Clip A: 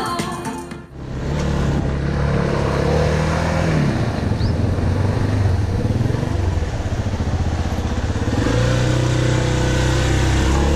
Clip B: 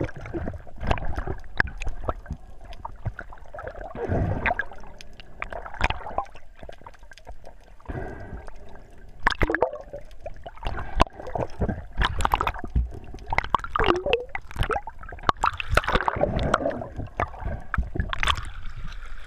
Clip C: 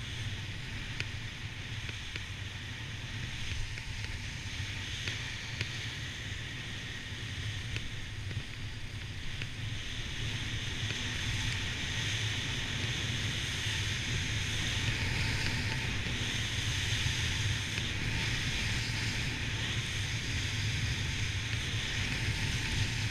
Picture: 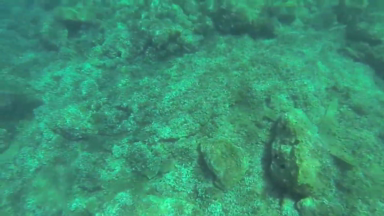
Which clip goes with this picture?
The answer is B